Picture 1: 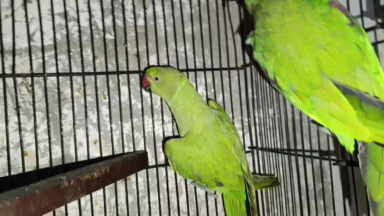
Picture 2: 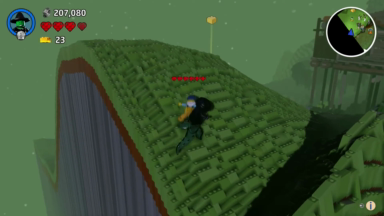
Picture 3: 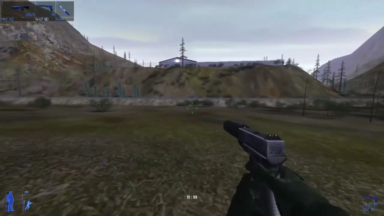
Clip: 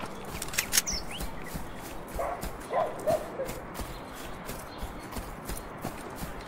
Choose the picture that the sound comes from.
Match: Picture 3